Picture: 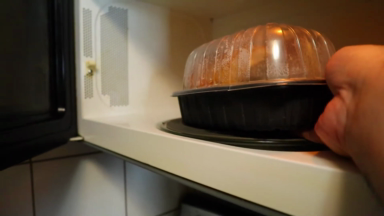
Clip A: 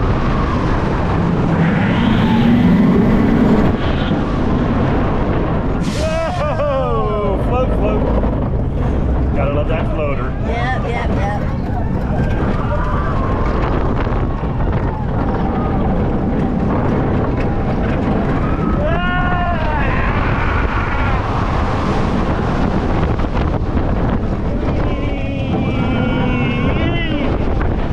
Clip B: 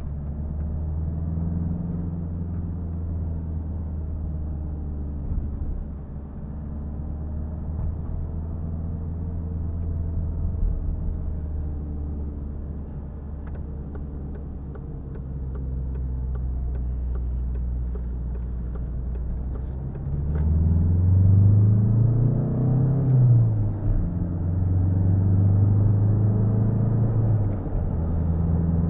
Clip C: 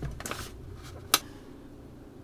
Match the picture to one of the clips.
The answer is C